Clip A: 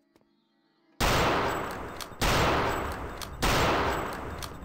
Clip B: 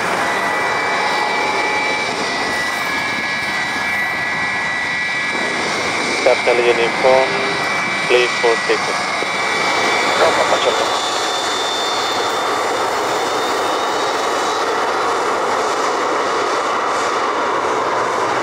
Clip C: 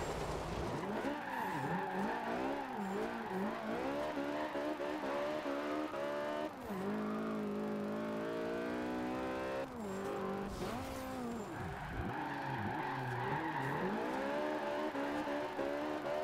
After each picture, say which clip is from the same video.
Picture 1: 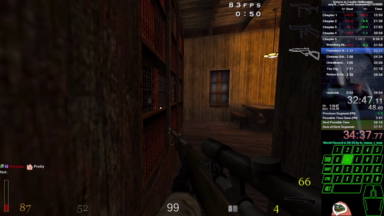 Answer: A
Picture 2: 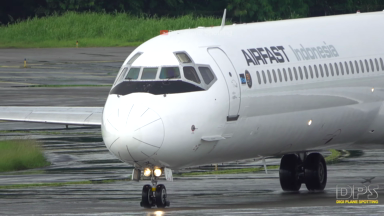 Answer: B